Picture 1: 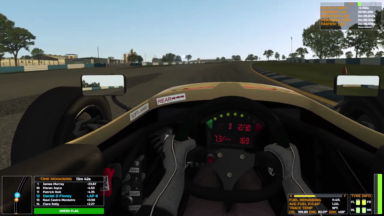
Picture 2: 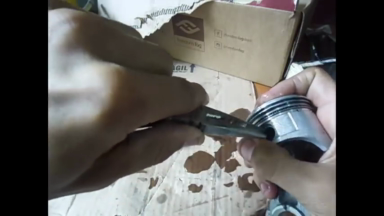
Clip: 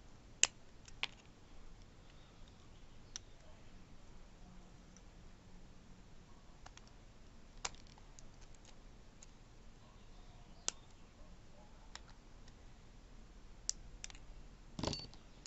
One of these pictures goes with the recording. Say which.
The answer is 2